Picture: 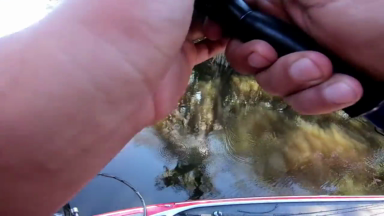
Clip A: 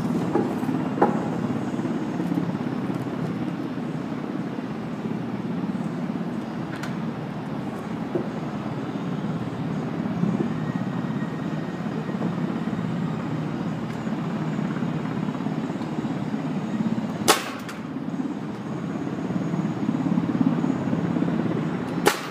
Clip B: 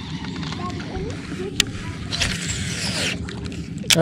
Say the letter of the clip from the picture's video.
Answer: B